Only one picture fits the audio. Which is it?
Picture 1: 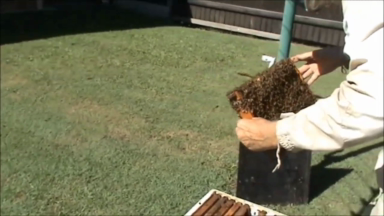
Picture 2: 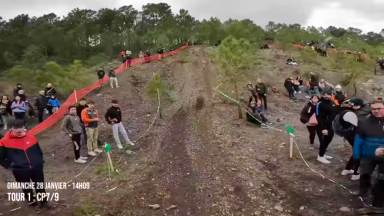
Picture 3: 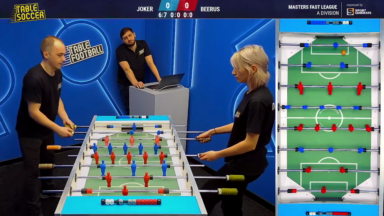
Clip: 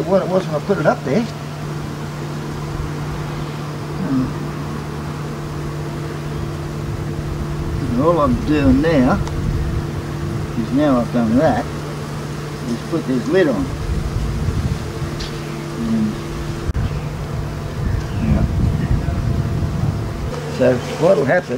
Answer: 1